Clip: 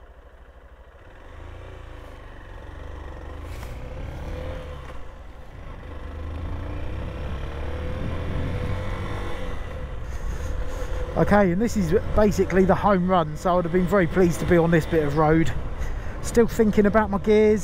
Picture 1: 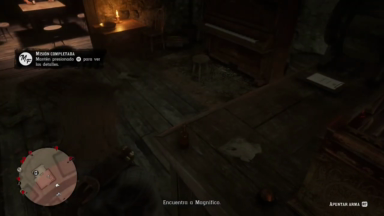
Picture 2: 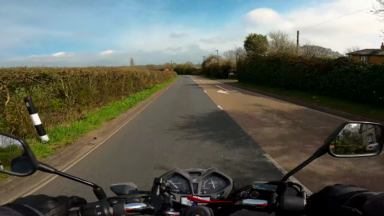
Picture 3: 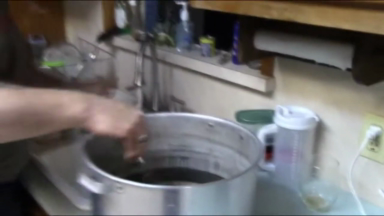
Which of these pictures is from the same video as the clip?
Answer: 2